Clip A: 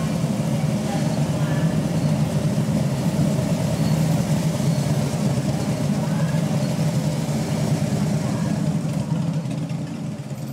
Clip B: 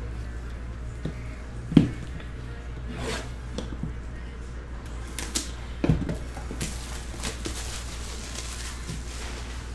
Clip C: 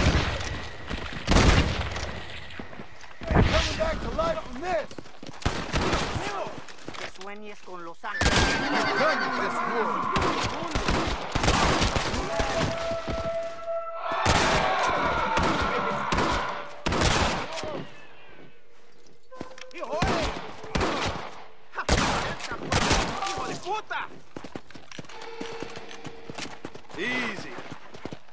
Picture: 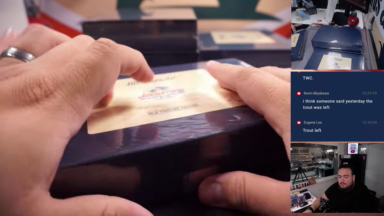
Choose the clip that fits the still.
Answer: B